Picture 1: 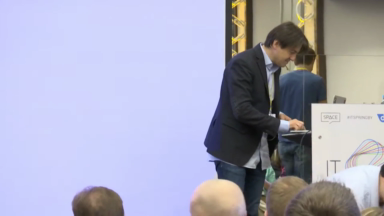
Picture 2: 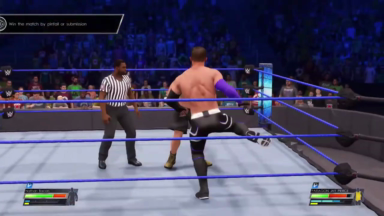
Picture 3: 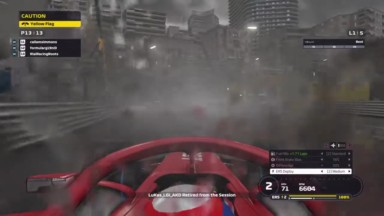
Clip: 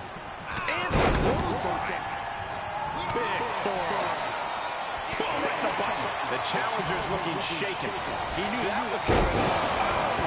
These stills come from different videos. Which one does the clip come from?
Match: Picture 2